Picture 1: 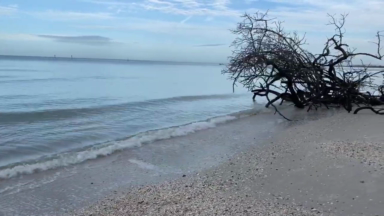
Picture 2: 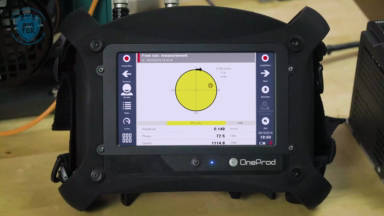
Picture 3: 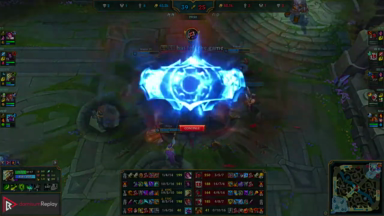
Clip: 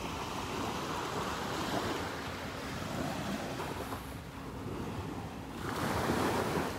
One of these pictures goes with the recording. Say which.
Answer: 1